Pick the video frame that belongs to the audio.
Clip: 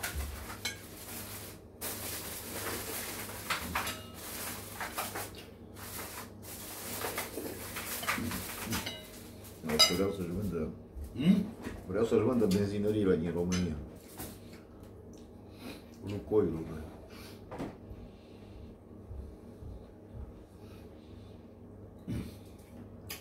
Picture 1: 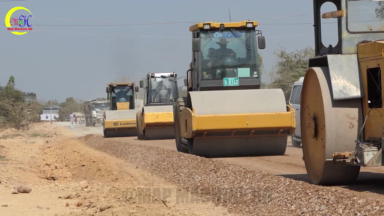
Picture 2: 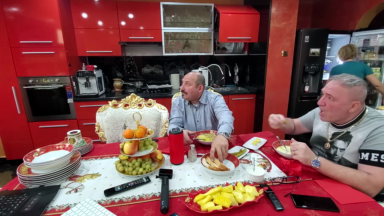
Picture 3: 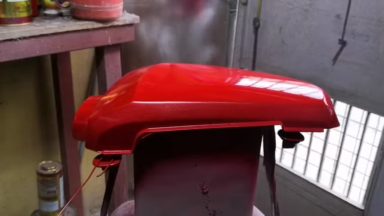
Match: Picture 2